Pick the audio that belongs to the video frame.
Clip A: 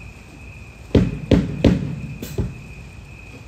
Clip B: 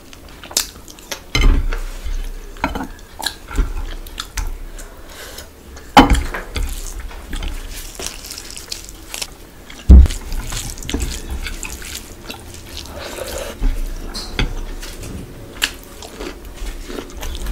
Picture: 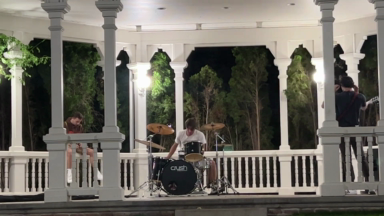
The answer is A